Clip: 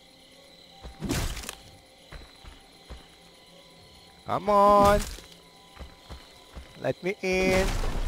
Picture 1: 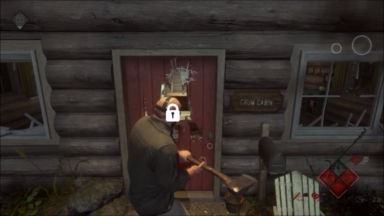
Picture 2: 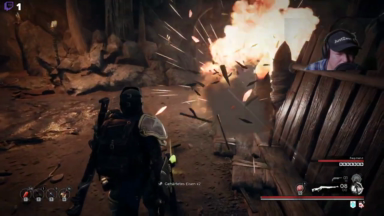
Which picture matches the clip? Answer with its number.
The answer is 1